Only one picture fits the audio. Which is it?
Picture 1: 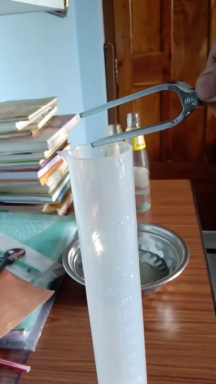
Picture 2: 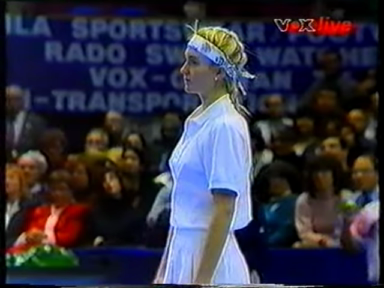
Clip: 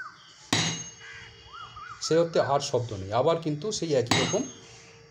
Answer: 1